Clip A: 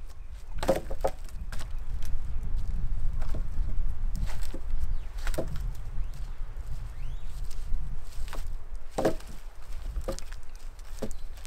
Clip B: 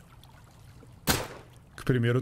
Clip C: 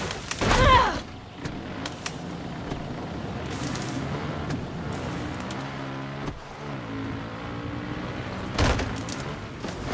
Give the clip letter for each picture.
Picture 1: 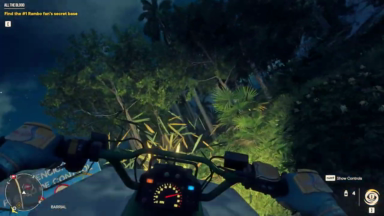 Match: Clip C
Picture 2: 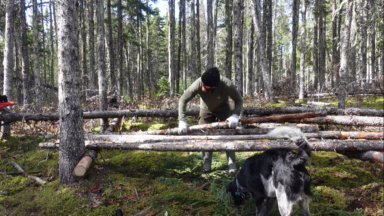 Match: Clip A